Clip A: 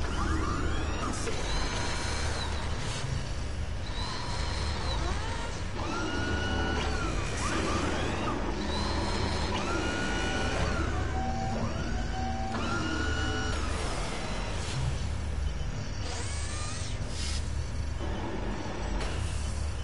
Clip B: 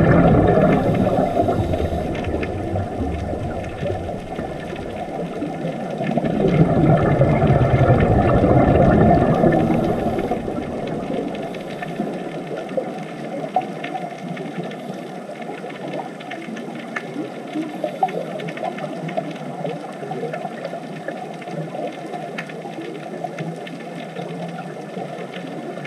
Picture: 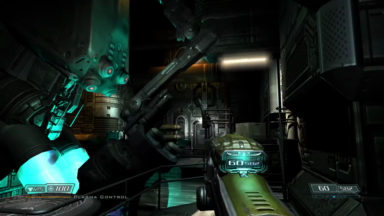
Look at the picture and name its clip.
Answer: A